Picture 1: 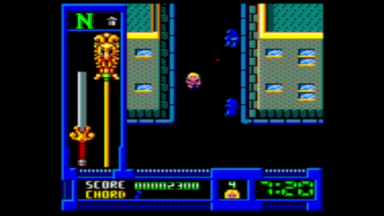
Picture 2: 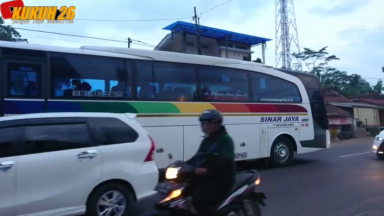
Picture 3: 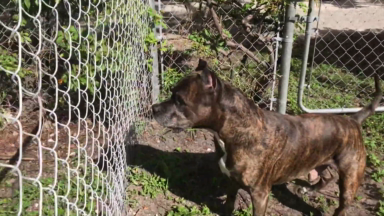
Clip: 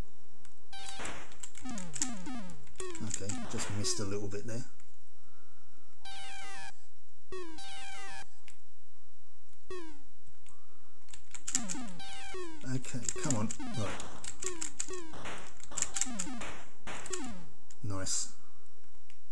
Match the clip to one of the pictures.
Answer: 1